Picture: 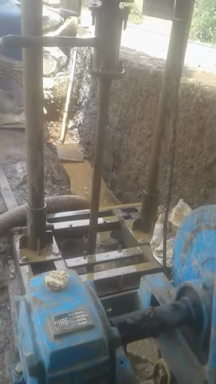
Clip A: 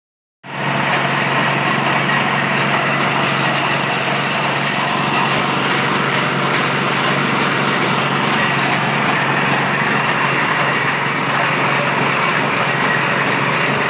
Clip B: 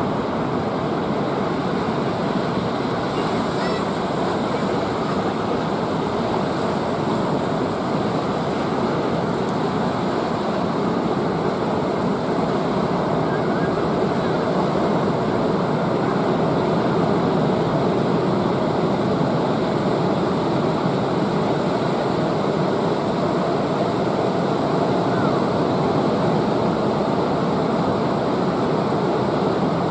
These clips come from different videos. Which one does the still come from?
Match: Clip A